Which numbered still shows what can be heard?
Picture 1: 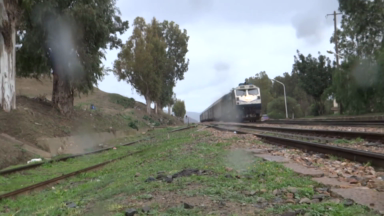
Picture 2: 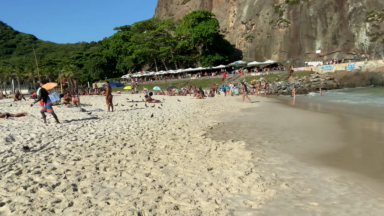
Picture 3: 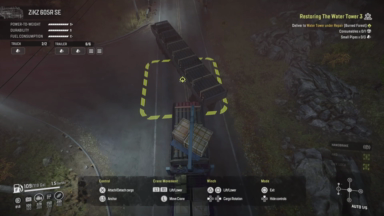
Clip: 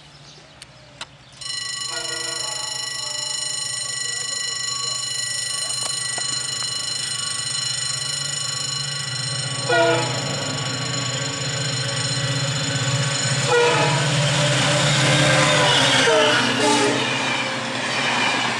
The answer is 1